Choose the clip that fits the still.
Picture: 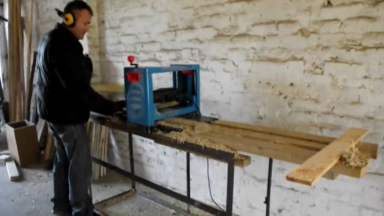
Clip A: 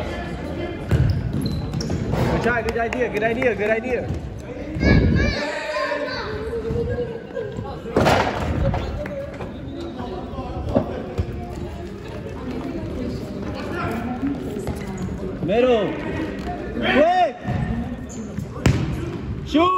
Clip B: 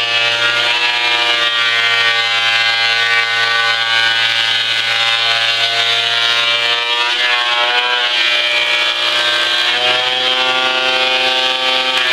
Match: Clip B